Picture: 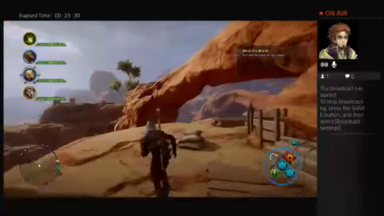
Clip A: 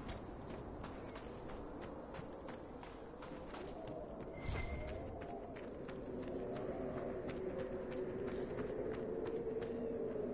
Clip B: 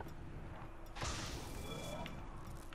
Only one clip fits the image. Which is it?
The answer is A